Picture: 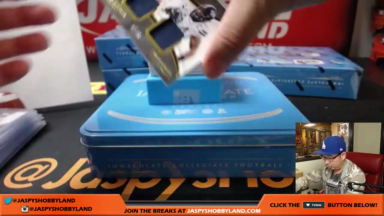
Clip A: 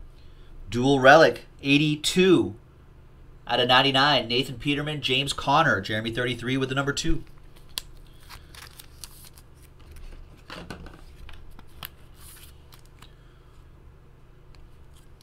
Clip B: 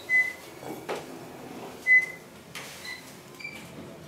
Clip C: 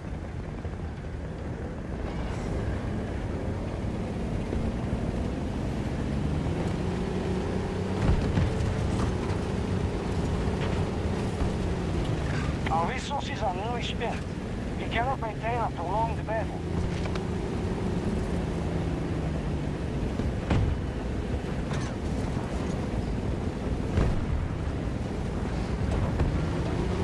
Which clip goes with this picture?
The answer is A